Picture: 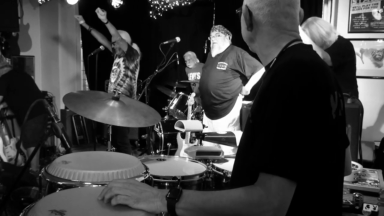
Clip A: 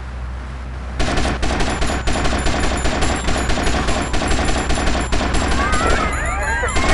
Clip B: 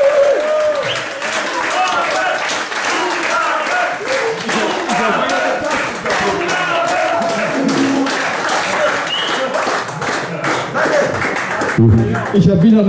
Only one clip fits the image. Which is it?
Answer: B